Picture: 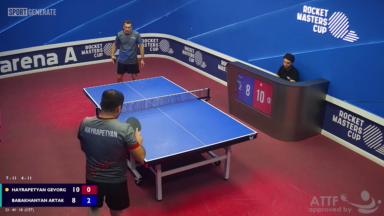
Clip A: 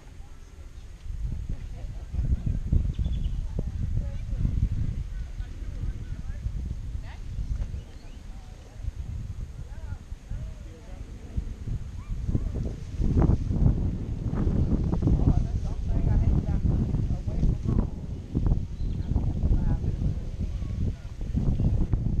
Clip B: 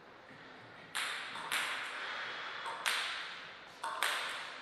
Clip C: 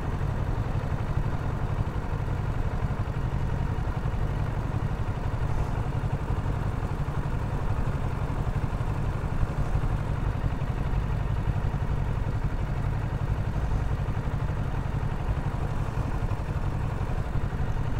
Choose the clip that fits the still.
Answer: B